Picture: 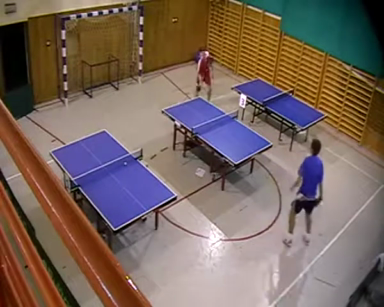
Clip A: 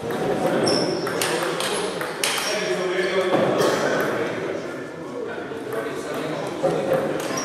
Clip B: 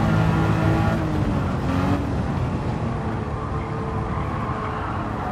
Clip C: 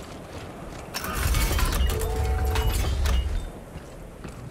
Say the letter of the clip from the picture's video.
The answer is A